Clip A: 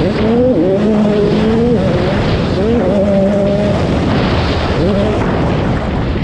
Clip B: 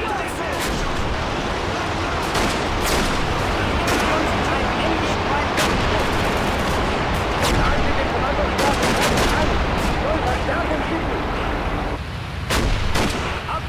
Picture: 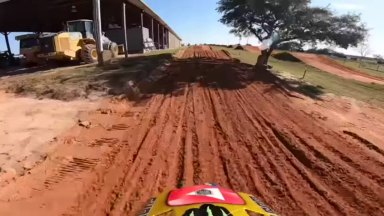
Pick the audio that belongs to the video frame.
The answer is A